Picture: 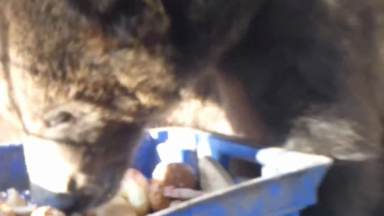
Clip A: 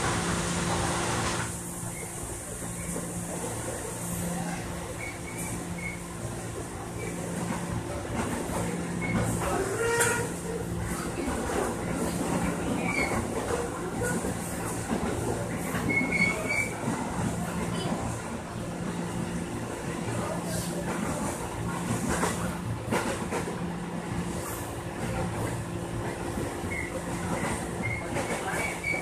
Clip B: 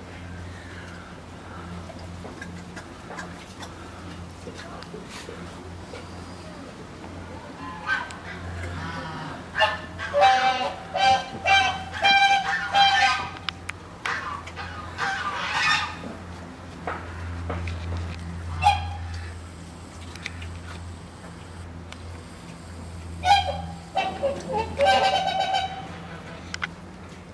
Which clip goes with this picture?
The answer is B